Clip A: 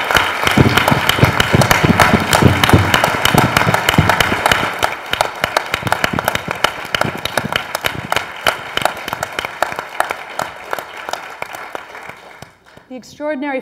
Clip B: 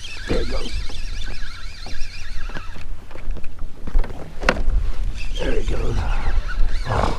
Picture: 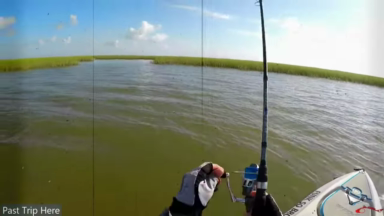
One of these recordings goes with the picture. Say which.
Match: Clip B